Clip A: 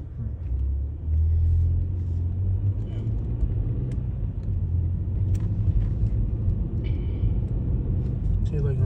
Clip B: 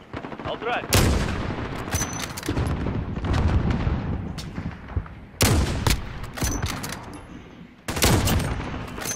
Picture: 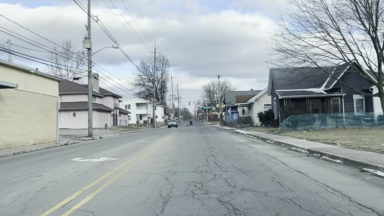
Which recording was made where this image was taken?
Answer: A